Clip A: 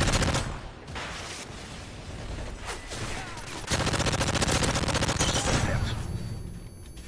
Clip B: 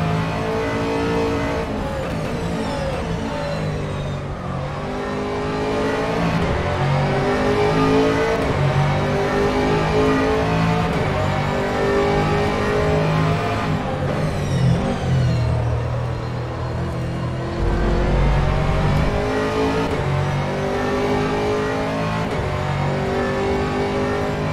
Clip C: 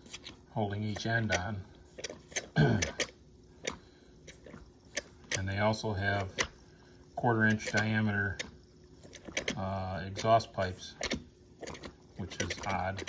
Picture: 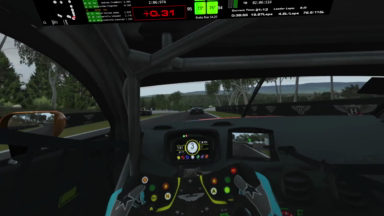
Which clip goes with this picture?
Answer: B